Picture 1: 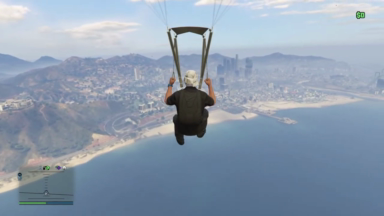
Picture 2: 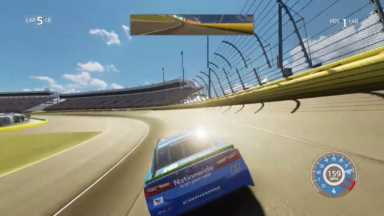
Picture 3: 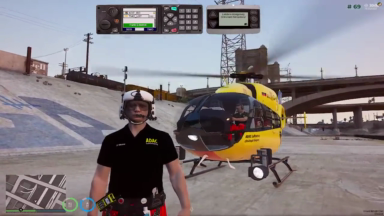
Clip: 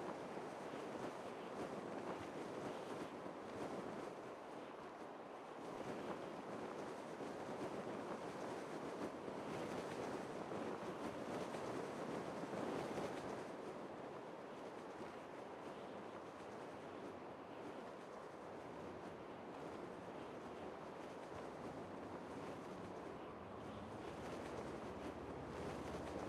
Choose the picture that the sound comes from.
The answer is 1